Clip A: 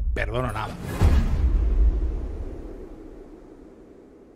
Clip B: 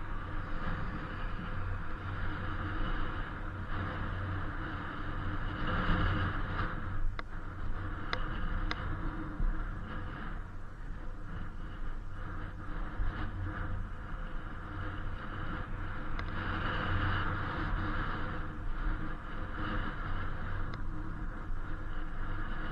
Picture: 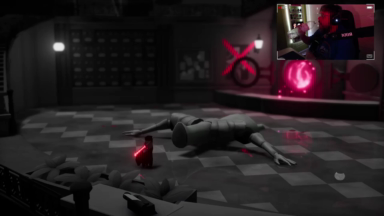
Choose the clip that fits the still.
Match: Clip A